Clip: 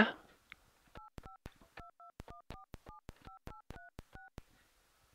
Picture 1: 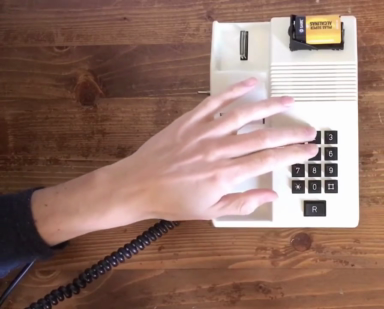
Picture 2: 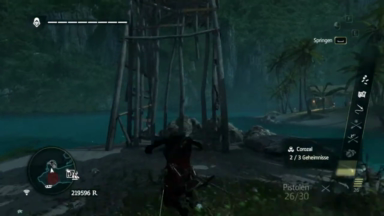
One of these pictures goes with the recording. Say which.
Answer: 1